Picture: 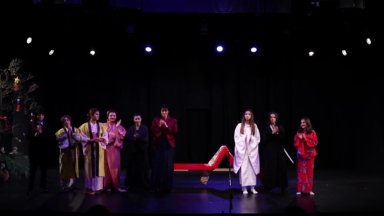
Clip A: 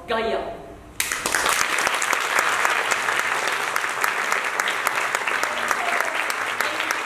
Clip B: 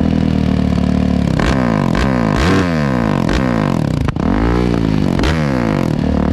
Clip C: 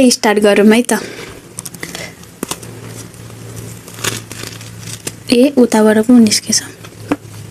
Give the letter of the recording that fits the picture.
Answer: A